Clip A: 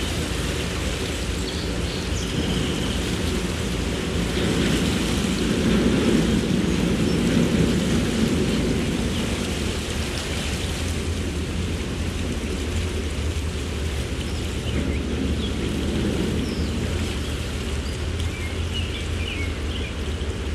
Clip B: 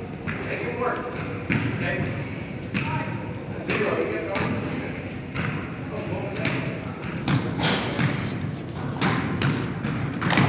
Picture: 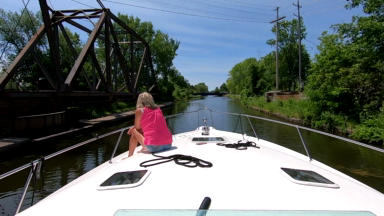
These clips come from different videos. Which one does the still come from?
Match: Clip A